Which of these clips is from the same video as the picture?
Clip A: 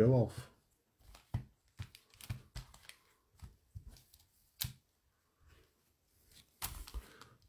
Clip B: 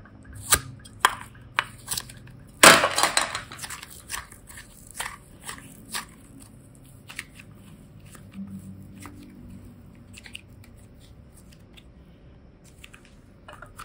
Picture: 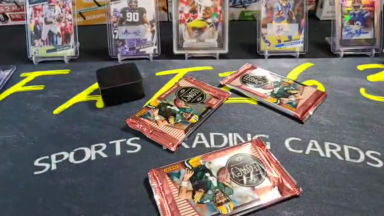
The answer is A